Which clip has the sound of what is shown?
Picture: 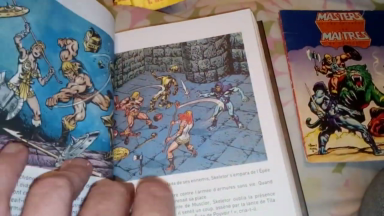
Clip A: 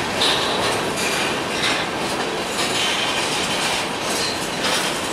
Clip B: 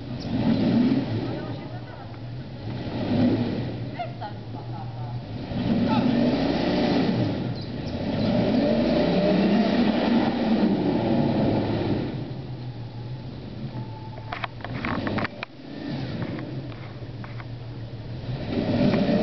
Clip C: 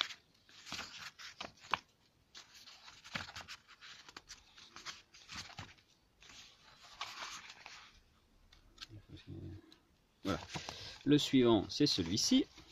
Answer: C